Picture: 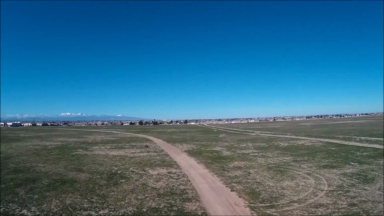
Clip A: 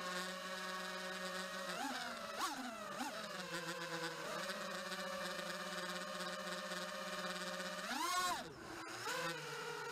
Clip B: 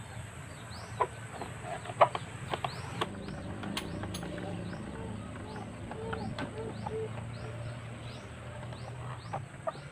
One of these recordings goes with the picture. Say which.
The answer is A